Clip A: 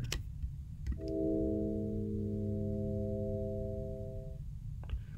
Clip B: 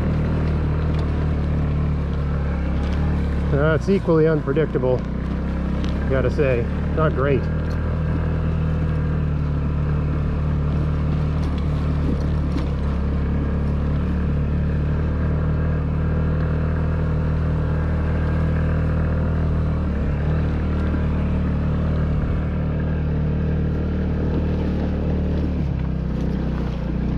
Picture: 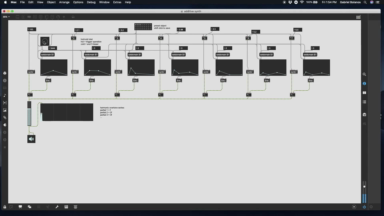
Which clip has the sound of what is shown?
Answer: A